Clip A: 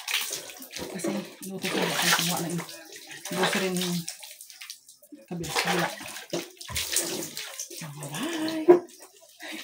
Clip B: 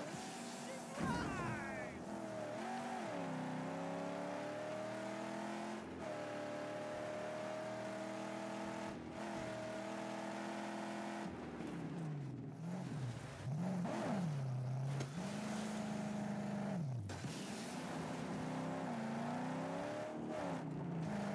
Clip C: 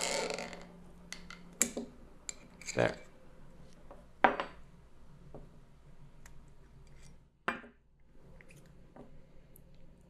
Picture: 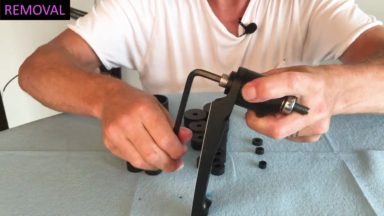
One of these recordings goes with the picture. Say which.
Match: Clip C